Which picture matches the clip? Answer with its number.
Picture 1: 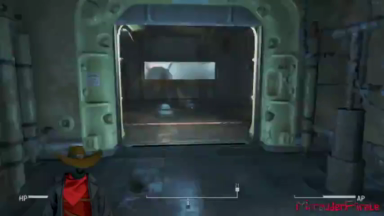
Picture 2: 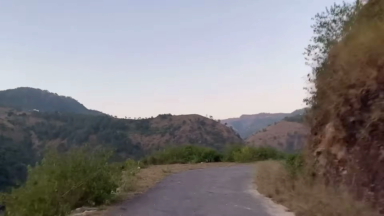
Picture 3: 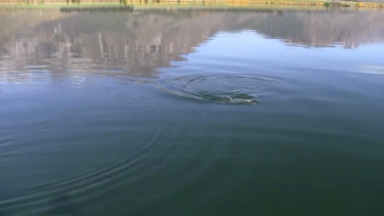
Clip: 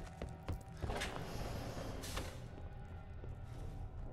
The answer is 1